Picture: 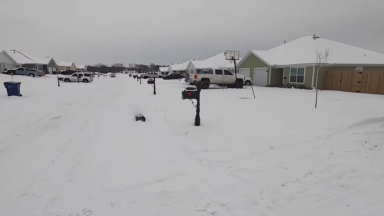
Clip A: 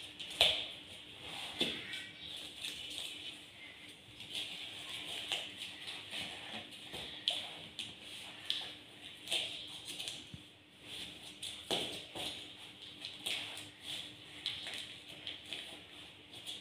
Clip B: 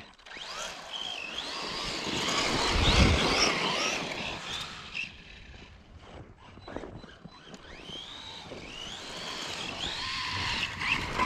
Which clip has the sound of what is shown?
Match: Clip B